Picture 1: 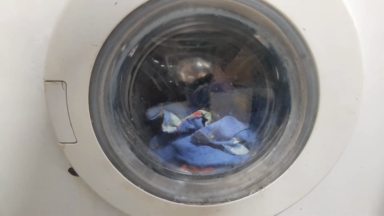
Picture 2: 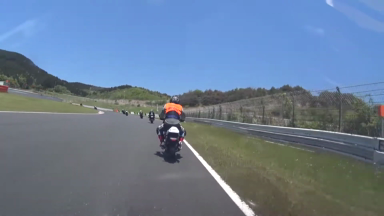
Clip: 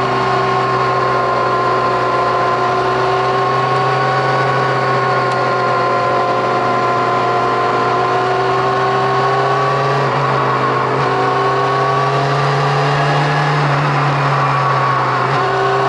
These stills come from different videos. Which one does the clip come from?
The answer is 2